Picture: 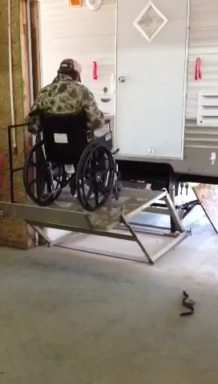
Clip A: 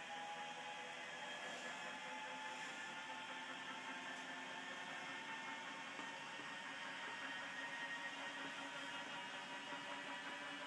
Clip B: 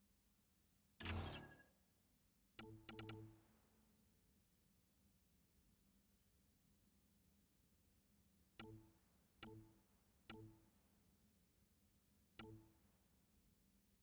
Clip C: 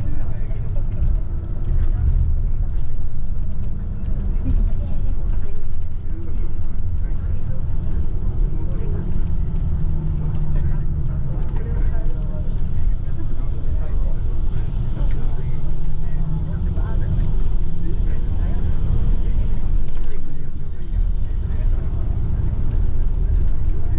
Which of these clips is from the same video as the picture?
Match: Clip A